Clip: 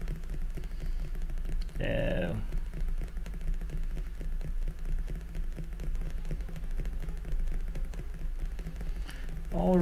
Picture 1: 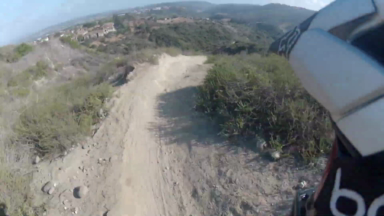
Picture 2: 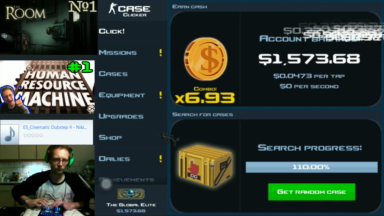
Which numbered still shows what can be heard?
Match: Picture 2